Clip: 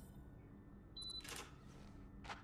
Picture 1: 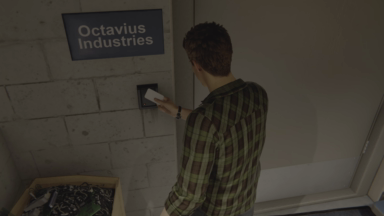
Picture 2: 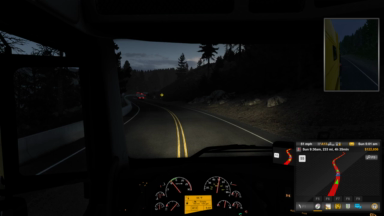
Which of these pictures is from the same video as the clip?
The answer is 1